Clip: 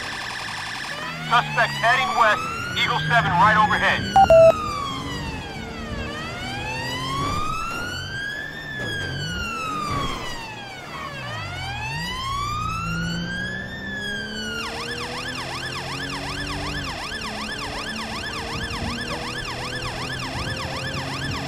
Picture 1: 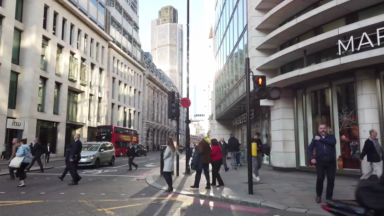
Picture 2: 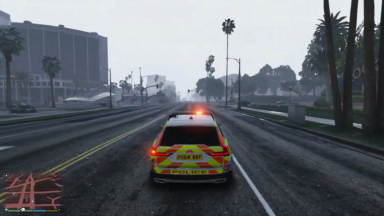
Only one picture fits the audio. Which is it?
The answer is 2